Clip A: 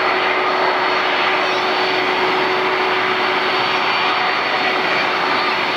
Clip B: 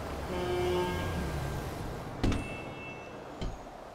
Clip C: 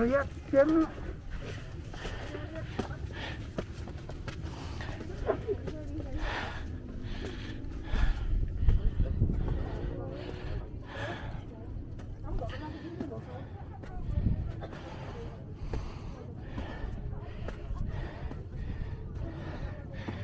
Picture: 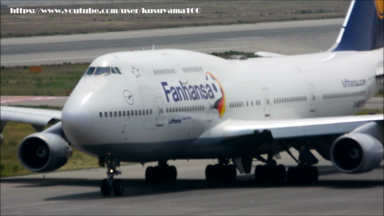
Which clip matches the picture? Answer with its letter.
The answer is A